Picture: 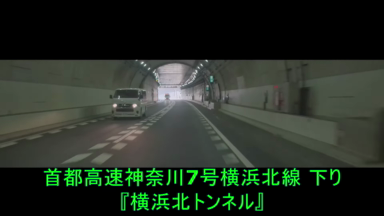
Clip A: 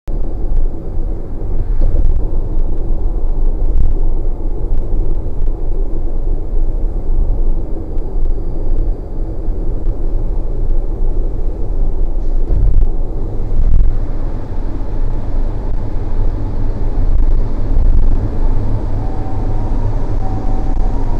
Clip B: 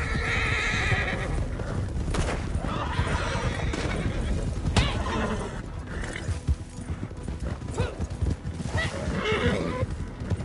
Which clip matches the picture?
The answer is A